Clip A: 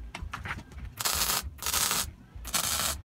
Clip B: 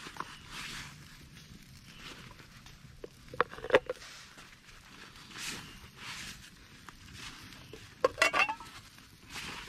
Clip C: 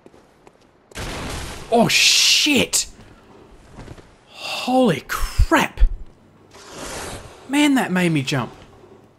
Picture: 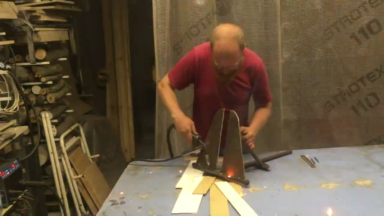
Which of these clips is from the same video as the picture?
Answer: A